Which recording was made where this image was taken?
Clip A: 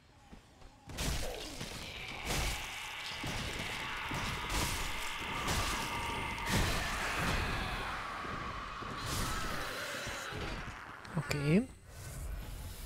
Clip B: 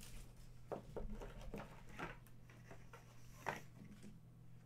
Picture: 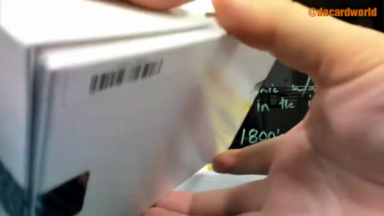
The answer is B